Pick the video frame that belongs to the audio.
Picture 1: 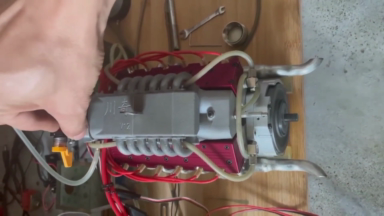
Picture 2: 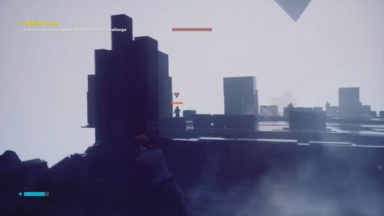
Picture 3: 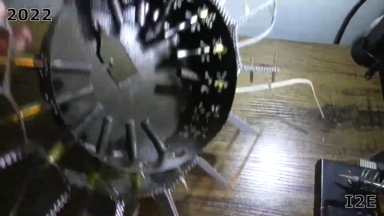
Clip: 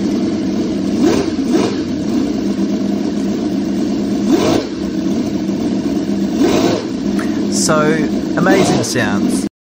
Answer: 1